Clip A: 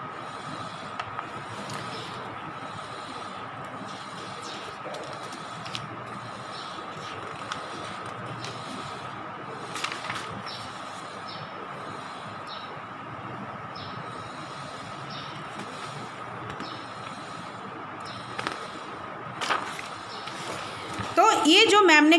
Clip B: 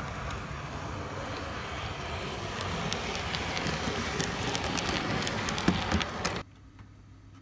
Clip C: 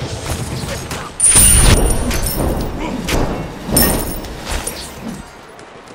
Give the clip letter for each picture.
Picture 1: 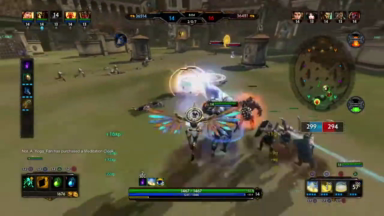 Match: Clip C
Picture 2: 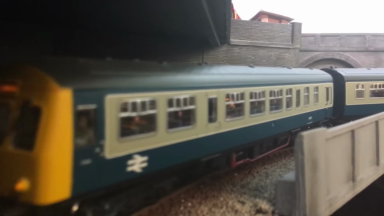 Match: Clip B